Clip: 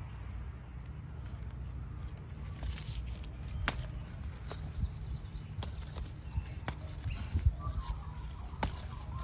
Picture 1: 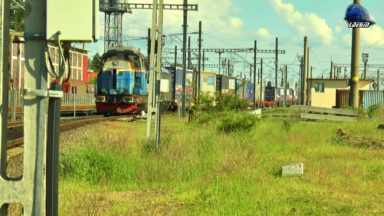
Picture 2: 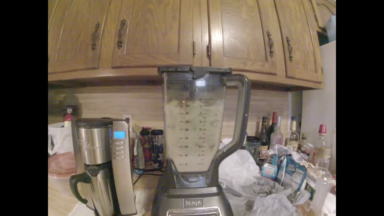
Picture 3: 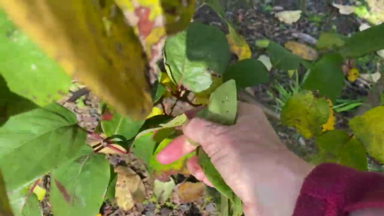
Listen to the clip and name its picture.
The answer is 3